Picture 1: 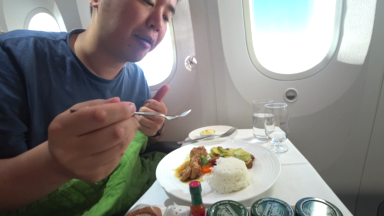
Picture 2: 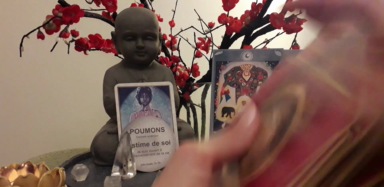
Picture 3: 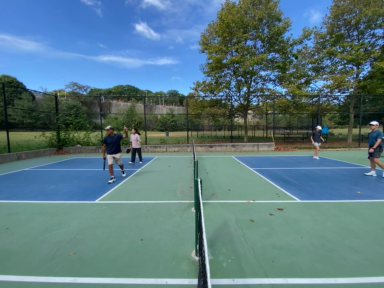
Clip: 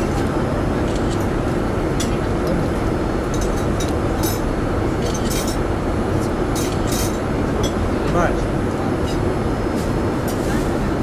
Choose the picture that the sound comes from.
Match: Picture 1